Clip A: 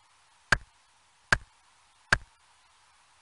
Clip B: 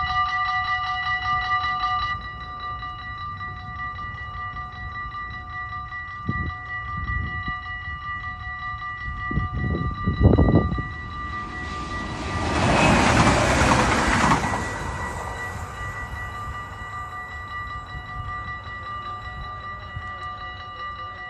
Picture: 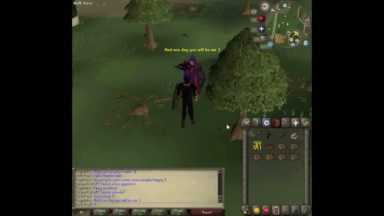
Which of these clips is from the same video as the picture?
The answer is A